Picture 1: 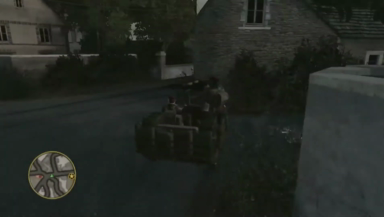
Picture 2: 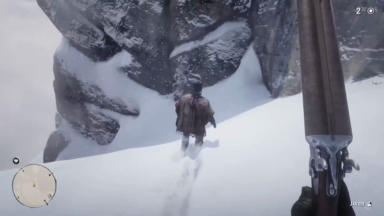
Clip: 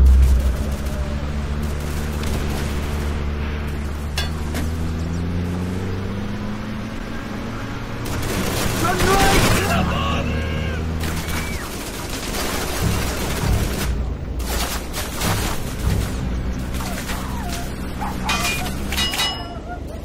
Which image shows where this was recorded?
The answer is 1